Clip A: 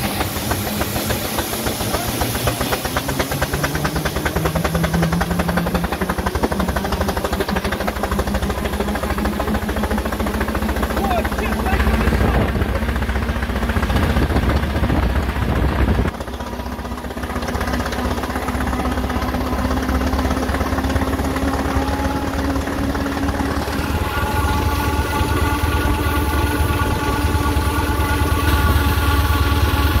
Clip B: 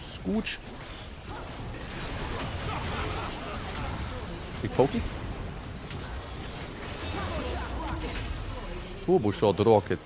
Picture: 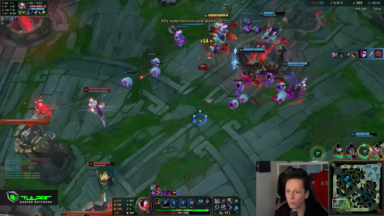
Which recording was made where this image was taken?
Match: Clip B